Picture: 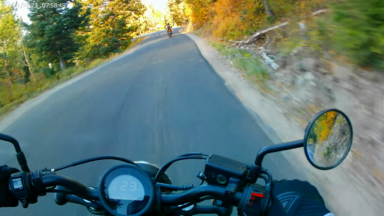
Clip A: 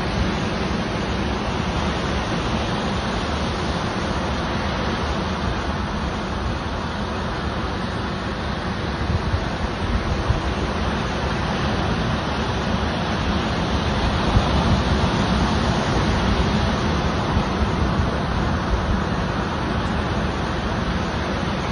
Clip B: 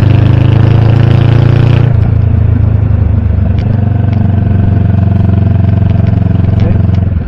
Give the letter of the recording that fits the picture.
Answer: B